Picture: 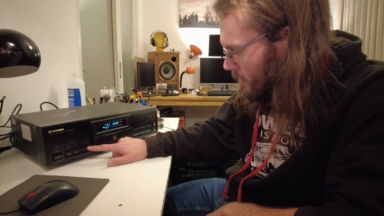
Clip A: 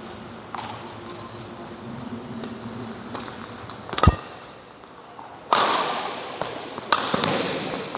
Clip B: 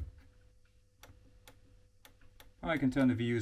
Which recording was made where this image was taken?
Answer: B